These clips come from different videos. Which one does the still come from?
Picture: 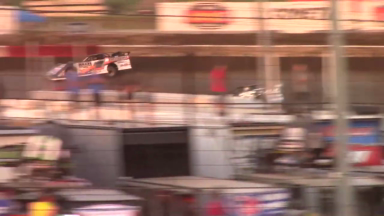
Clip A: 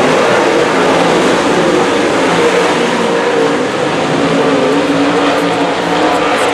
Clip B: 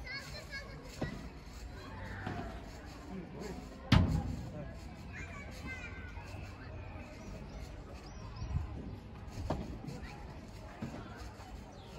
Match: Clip A